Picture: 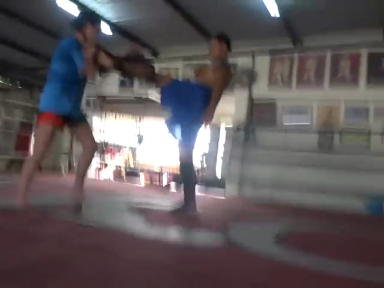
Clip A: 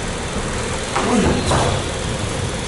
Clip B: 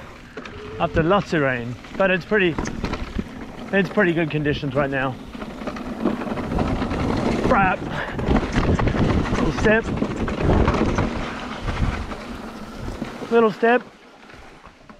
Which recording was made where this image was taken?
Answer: A